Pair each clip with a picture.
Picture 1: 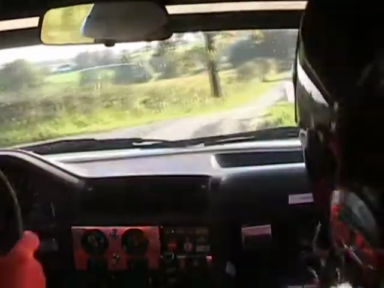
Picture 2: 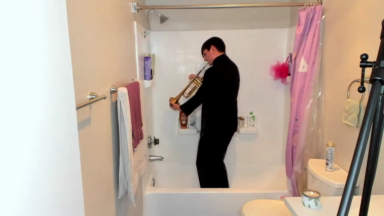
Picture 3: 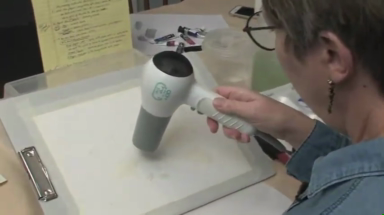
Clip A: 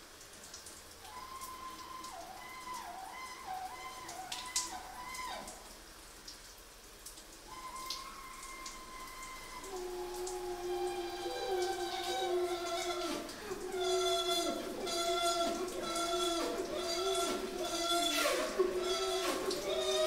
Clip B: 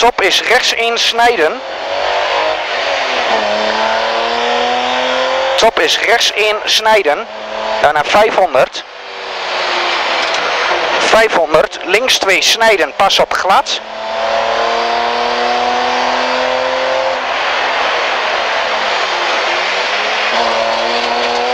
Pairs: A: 2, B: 1